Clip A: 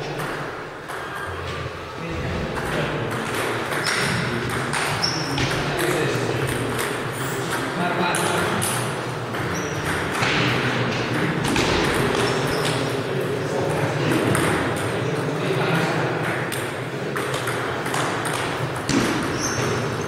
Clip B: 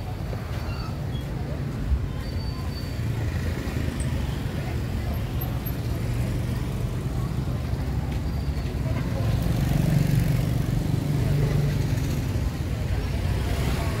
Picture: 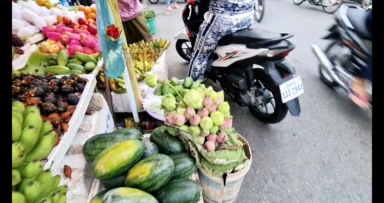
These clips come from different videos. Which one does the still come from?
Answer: B